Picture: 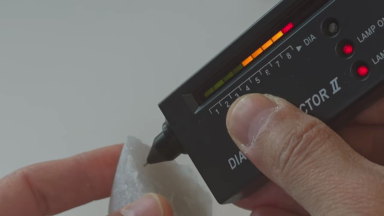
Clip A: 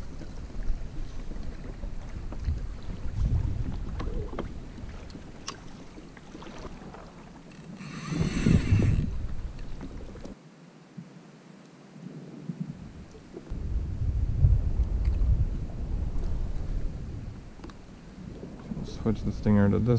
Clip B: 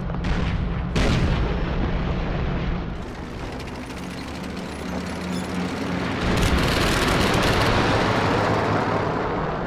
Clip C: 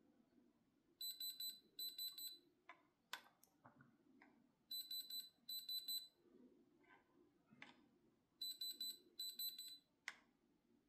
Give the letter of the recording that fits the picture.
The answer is C